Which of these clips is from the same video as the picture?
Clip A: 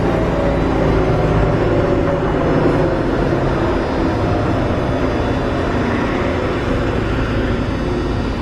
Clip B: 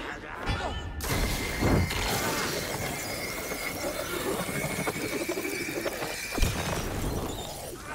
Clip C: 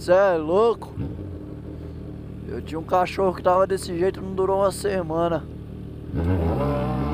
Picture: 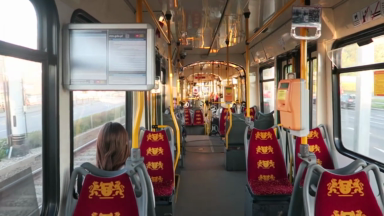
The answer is A